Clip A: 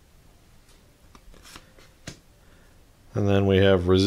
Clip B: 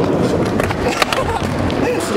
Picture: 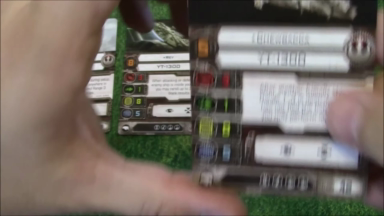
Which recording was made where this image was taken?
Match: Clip A